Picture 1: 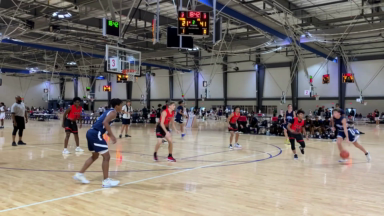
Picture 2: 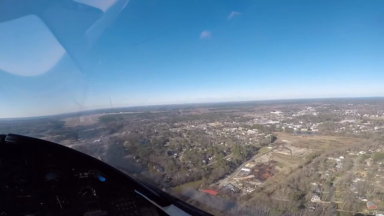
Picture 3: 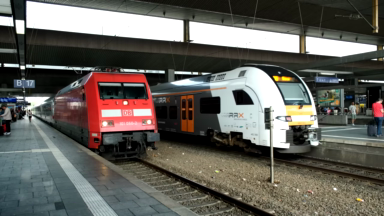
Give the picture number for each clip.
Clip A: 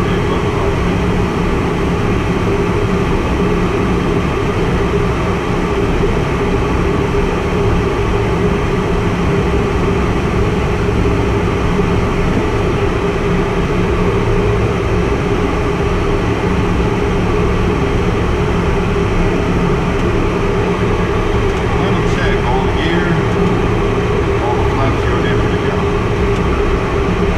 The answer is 2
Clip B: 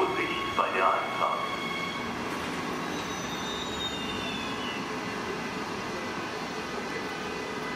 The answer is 3